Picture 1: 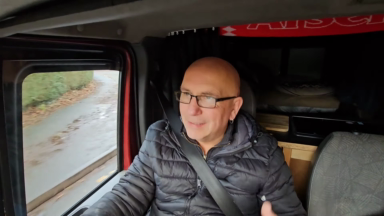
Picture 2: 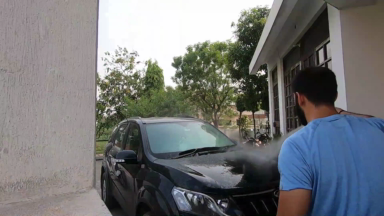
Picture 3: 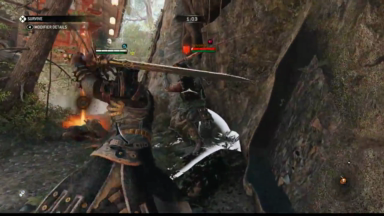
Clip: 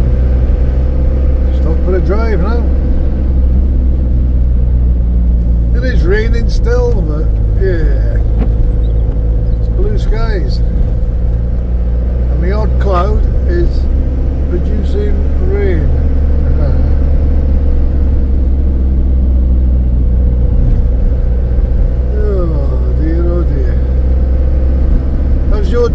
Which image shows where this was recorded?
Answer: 1